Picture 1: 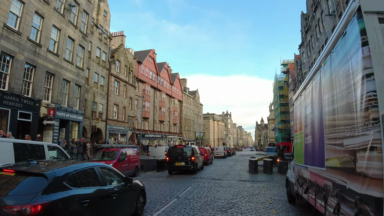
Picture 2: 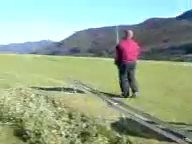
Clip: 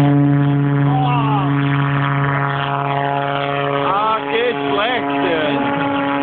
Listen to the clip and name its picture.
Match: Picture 2